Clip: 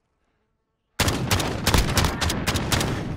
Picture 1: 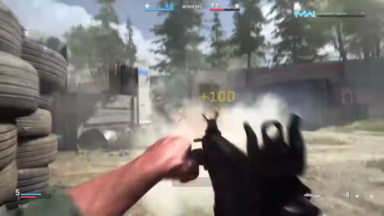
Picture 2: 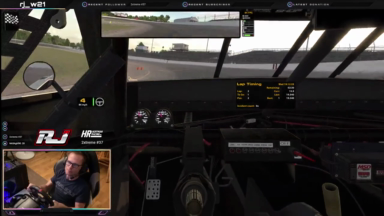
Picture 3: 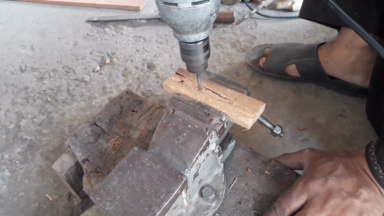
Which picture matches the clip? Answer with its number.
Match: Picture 1